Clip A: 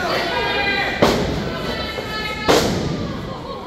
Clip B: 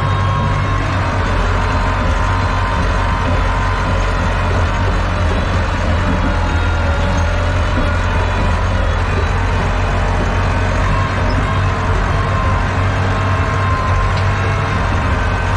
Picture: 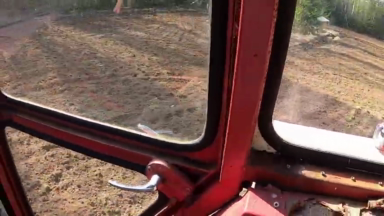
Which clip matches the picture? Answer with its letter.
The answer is B